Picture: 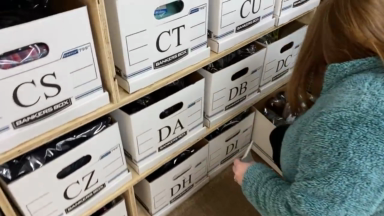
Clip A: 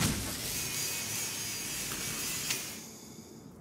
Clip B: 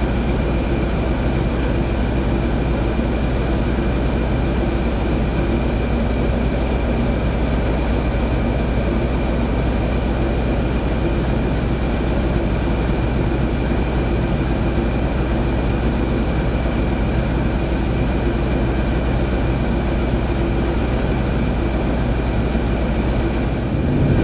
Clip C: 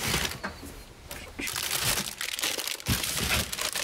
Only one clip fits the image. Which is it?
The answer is C